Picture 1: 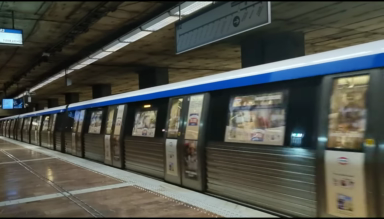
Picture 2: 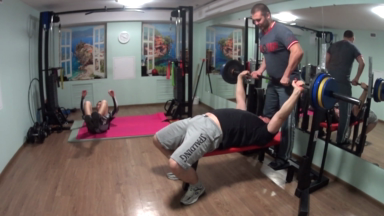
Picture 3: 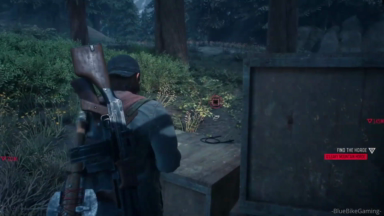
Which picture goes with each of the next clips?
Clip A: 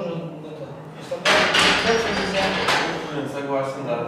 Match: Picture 2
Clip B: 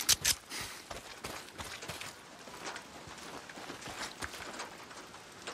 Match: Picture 3